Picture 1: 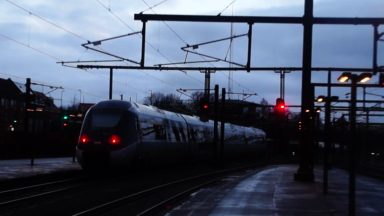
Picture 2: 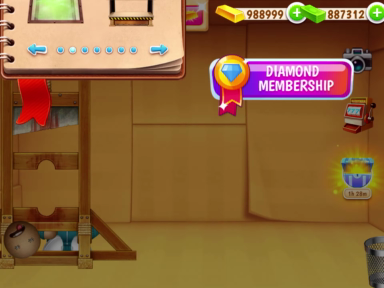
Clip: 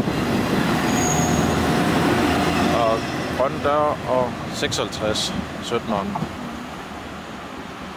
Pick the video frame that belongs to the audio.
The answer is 1